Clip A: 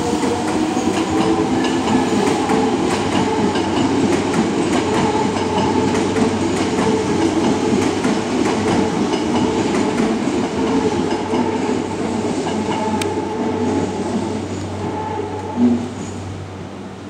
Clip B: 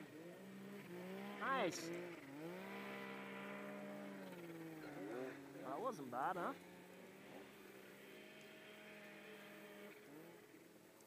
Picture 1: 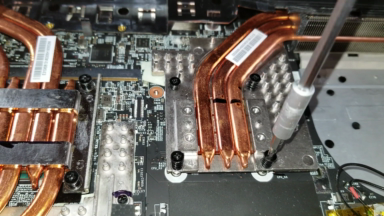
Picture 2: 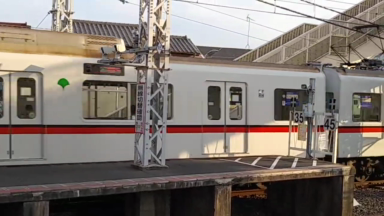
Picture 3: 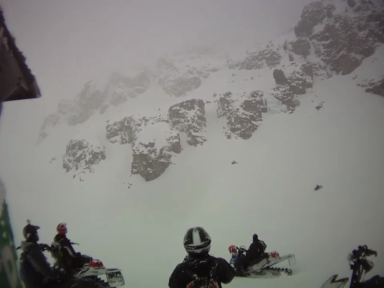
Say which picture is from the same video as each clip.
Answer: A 2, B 3